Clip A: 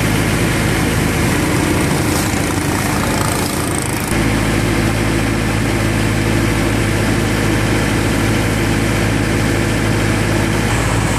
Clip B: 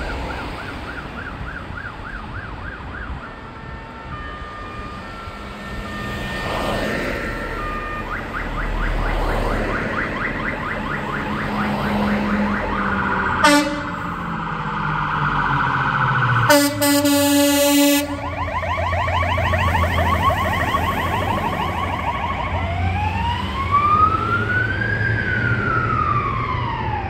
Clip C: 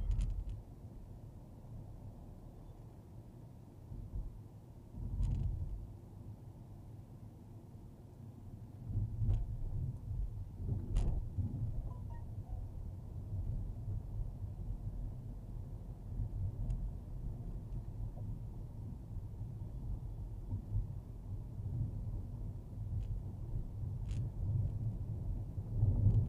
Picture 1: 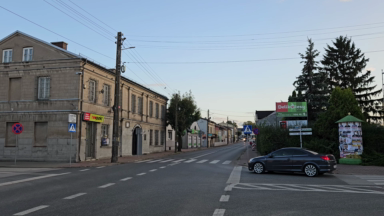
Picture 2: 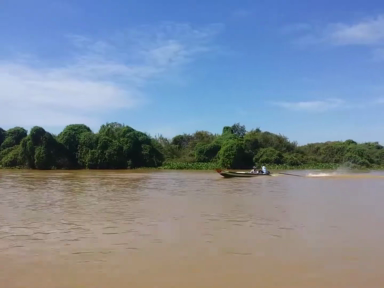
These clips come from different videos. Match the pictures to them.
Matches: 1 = B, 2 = A